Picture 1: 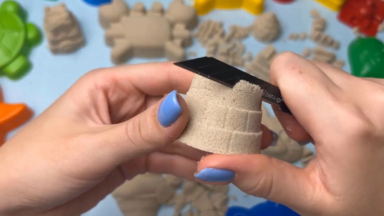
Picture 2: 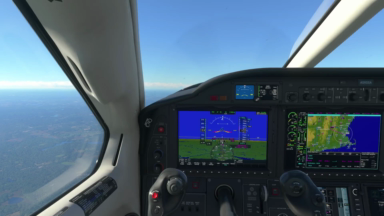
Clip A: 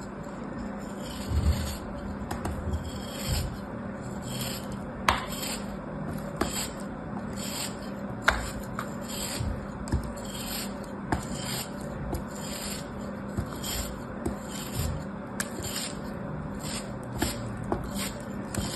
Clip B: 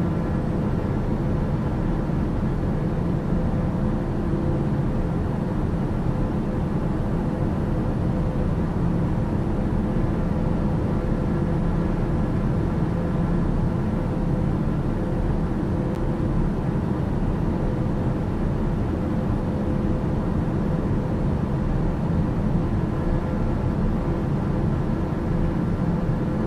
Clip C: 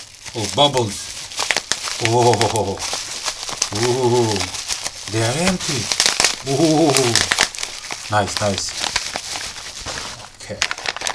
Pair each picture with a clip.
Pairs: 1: A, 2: B